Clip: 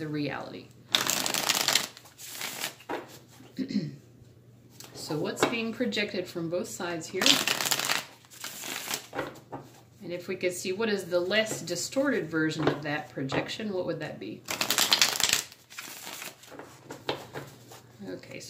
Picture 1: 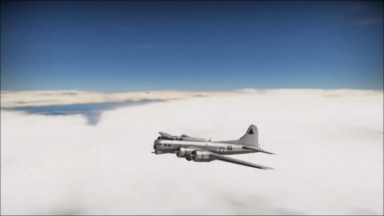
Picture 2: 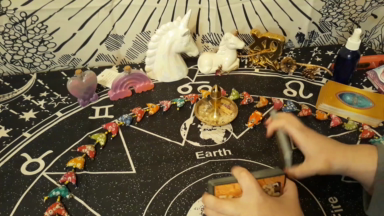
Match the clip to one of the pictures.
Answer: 2